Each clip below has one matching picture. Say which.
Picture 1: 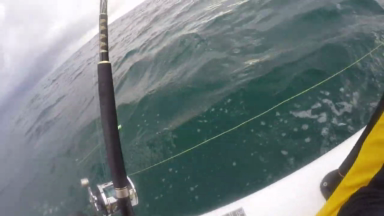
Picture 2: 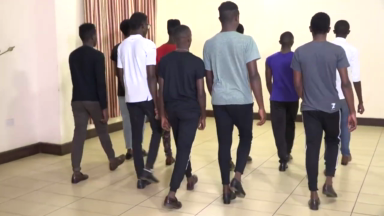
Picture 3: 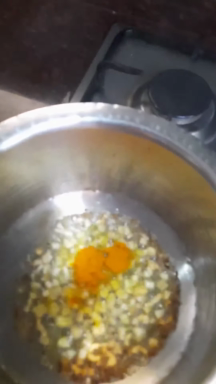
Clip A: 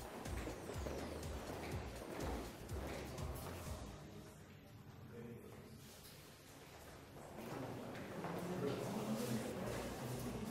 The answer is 2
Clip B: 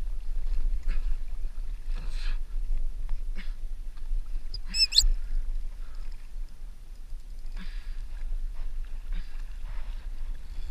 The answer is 1